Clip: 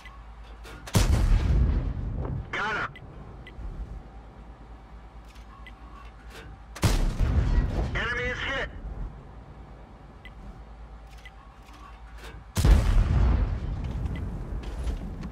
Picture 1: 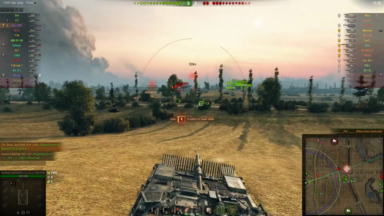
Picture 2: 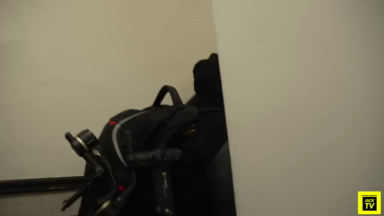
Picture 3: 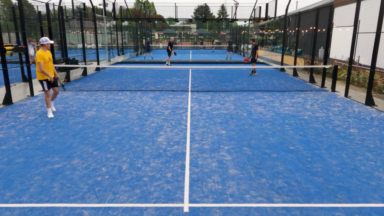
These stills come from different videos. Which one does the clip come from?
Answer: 1